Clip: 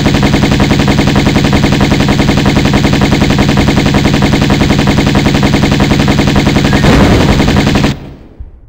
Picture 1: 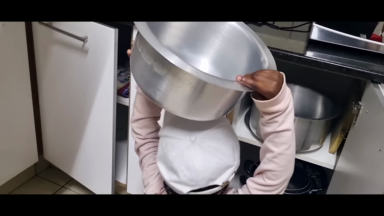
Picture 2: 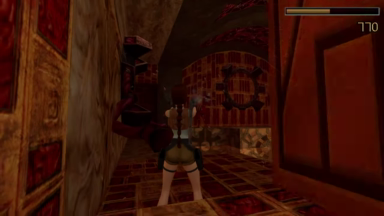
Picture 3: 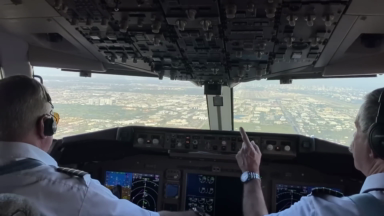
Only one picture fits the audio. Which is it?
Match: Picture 2